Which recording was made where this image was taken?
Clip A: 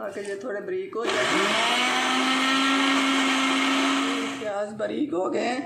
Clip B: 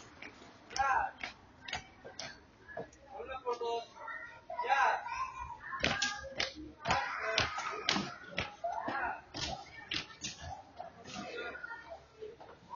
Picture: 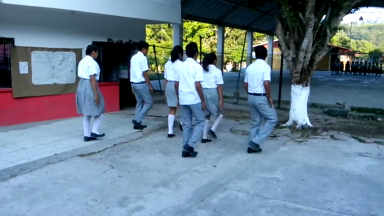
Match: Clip B